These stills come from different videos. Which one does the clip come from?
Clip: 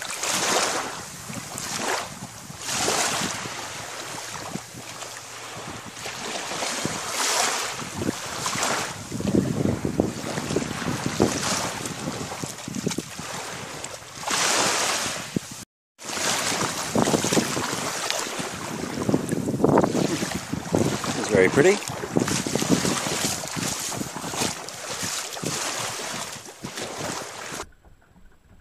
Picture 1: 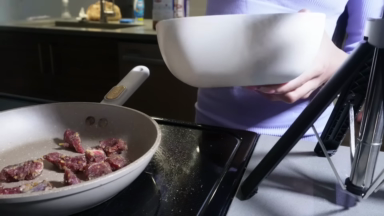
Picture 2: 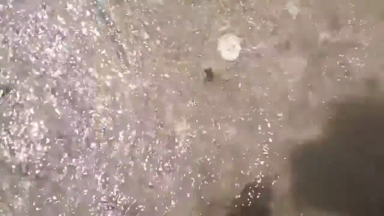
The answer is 2